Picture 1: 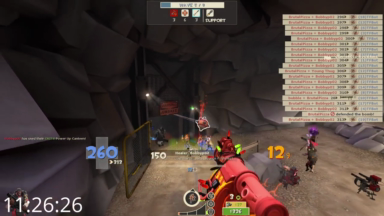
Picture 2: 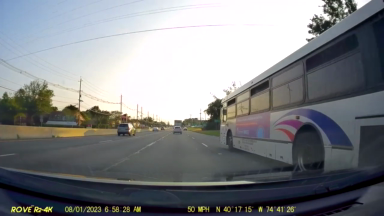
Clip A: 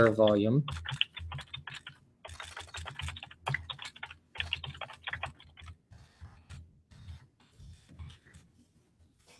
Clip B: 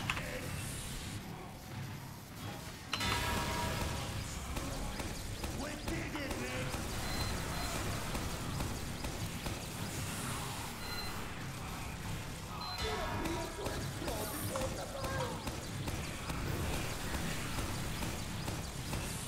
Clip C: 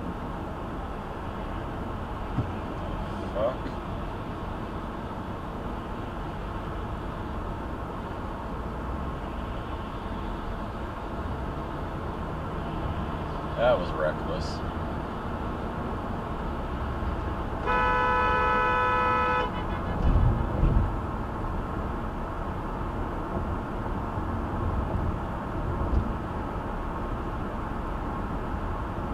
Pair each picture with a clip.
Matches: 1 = B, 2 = C